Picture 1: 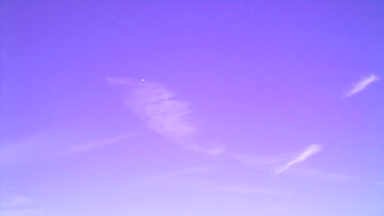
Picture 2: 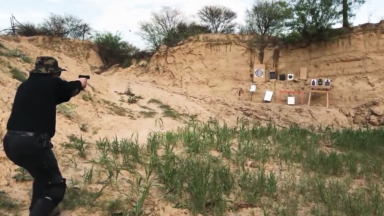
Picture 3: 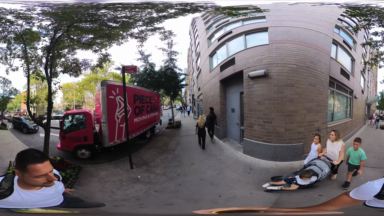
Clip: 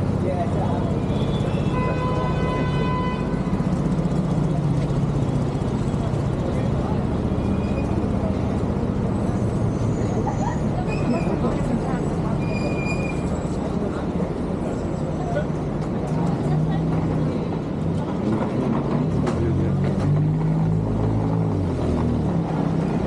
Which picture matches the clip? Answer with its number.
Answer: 3